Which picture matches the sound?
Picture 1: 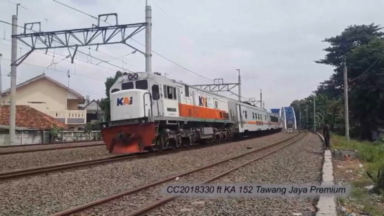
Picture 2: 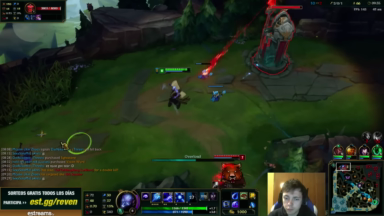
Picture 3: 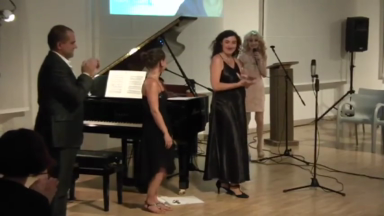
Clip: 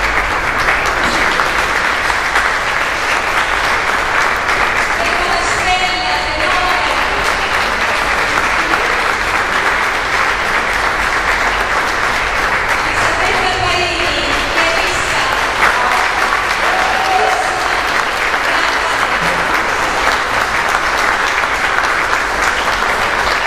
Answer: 3